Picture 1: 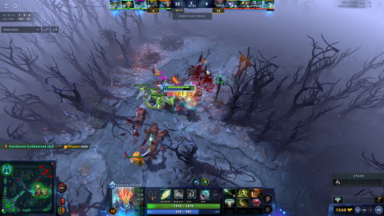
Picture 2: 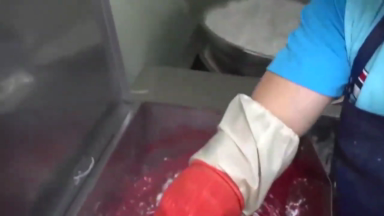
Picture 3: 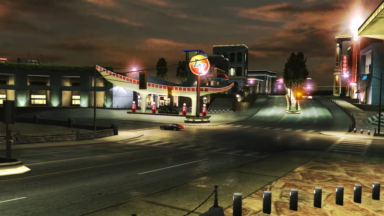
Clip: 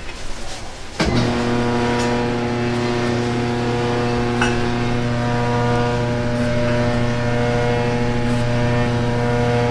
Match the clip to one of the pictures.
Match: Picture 2